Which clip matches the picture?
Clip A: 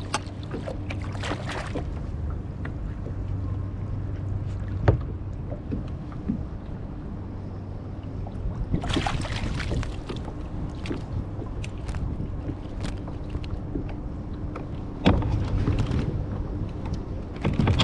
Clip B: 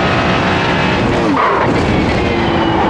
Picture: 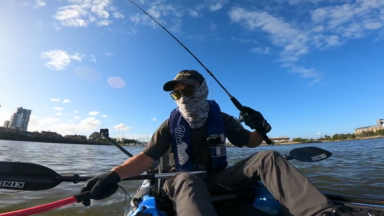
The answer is A